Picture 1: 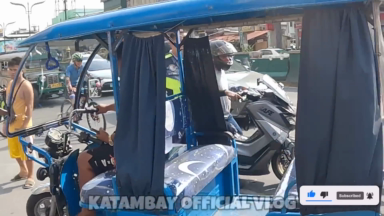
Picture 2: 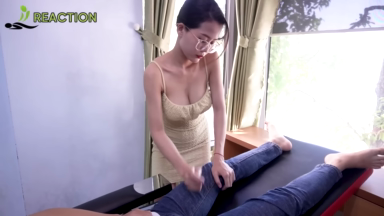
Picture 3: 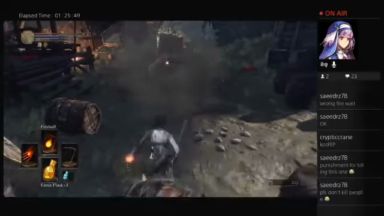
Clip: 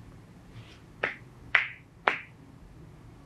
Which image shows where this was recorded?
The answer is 2